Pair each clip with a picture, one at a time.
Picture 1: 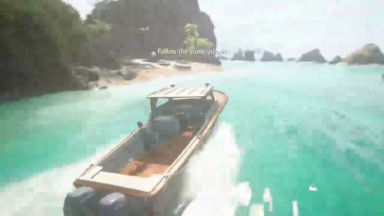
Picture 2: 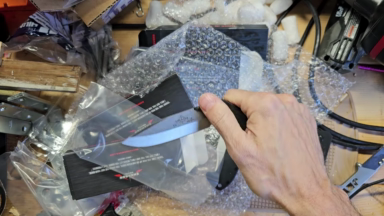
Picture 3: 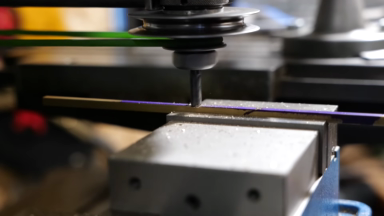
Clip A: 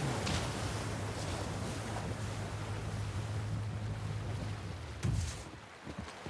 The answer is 1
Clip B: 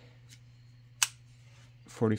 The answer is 2